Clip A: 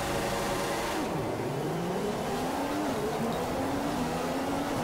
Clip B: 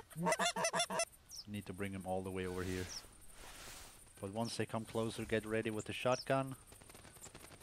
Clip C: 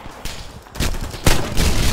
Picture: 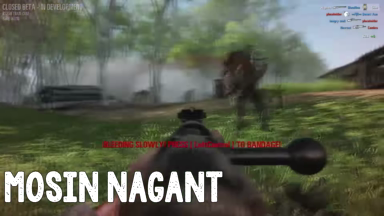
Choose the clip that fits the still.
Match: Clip C